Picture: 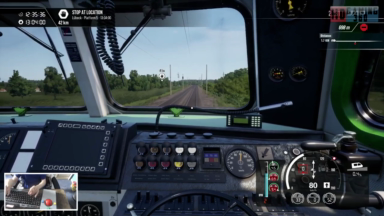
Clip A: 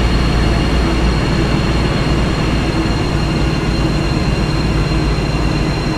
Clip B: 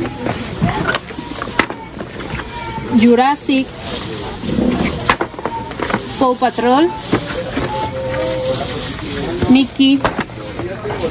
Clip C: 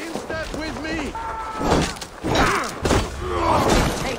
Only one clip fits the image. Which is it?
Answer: A